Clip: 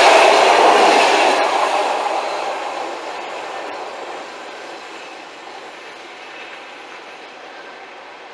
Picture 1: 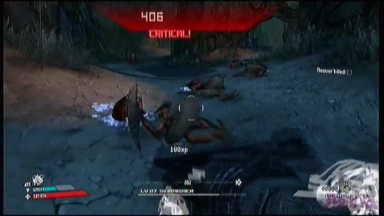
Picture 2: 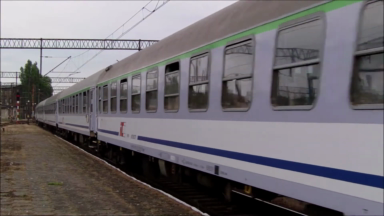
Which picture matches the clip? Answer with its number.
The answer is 2